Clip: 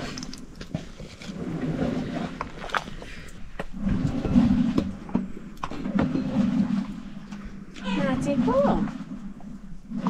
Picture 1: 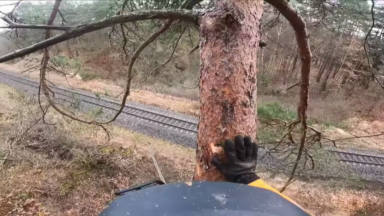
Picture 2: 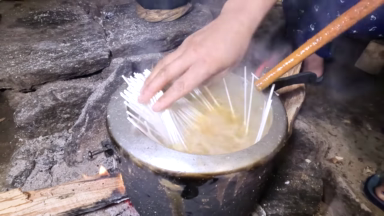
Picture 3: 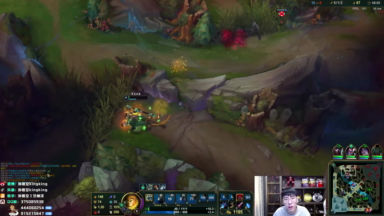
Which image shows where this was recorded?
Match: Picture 2